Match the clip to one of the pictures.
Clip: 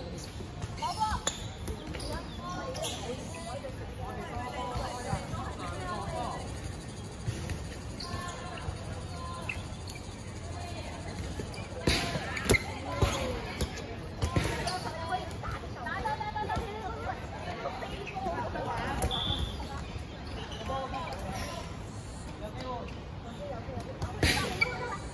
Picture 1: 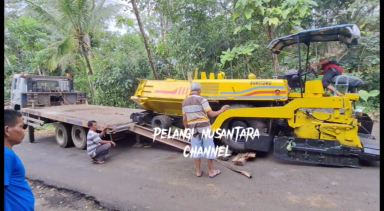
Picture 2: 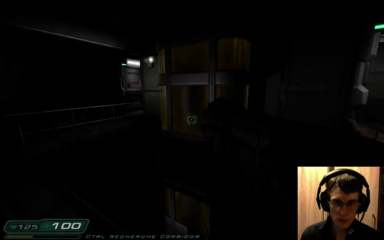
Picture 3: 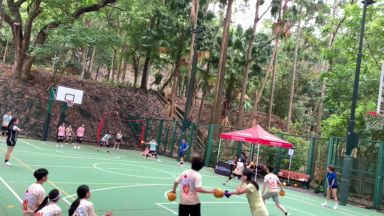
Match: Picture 3